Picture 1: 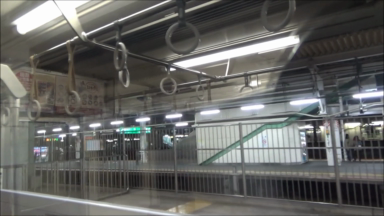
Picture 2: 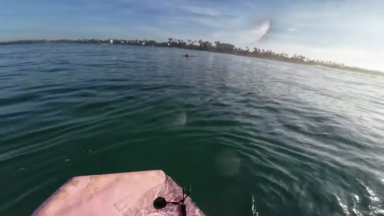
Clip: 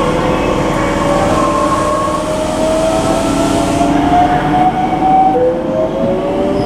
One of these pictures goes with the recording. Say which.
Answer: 1